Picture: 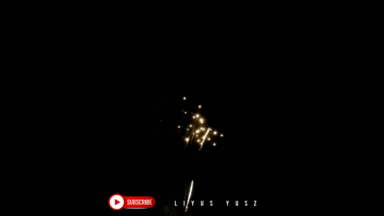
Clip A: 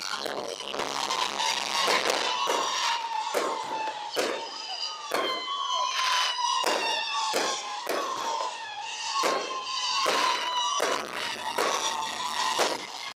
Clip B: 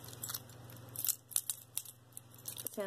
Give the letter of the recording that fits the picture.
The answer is A